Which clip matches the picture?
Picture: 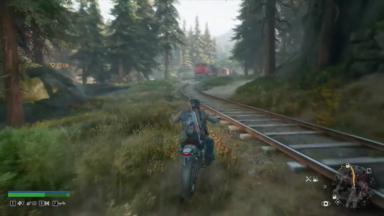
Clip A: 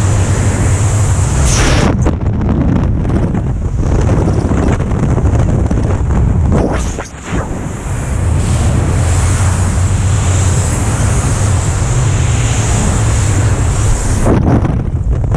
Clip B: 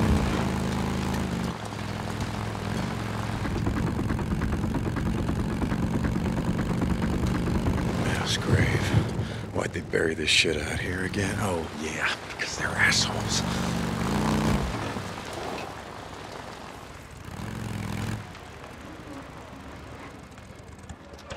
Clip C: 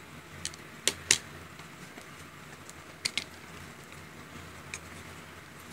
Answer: B